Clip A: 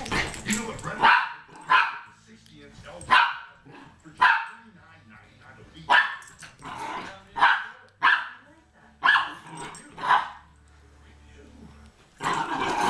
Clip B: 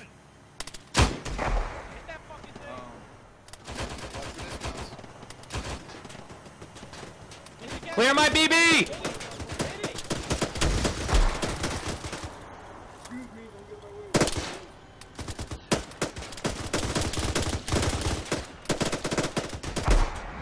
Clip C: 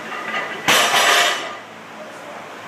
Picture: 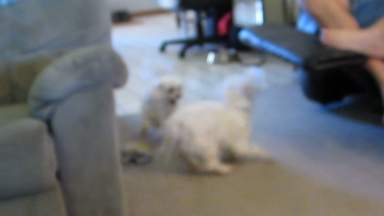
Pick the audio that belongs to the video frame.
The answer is A